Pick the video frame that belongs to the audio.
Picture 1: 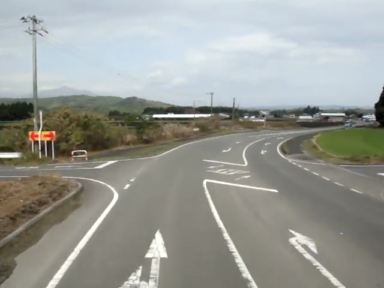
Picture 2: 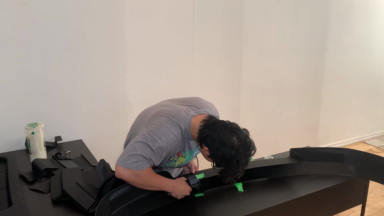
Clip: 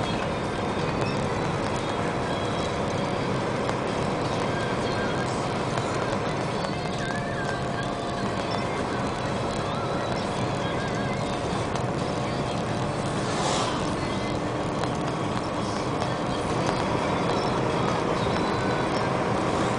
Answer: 1